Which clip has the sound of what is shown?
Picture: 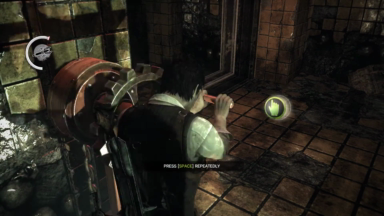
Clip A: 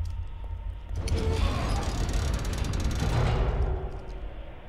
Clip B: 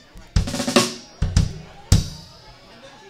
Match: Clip A